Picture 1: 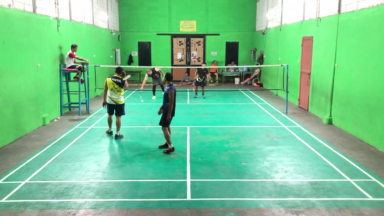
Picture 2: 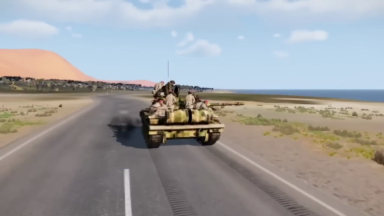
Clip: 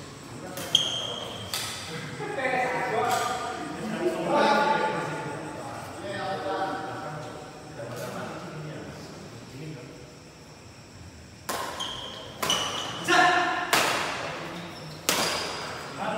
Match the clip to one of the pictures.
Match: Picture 1